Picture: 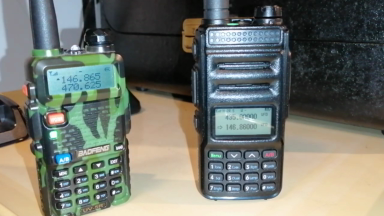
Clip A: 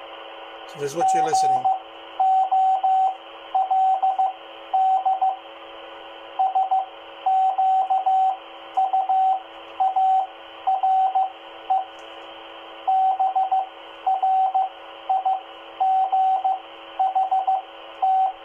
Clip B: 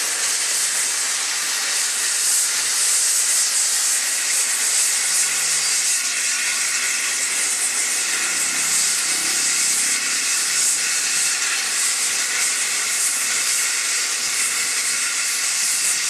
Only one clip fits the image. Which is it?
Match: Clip A